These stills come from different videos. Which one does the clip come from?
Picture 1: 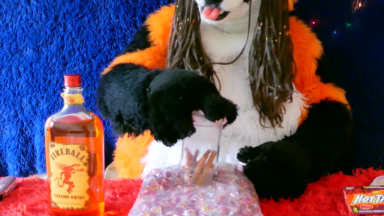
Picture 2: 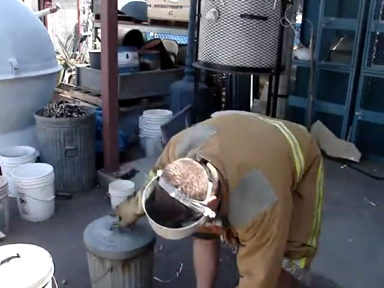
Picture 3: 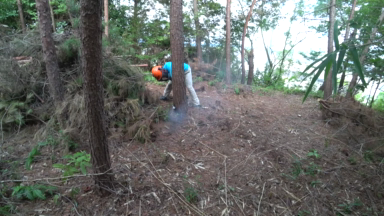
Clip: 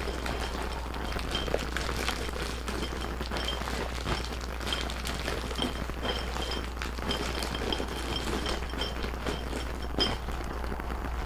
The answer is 1